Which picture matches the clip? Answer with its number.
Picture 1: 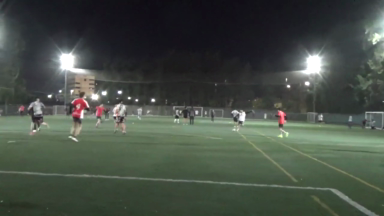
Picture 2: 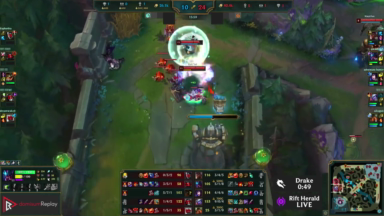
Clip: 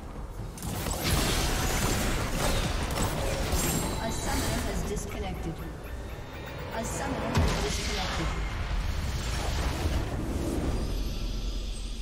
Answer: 2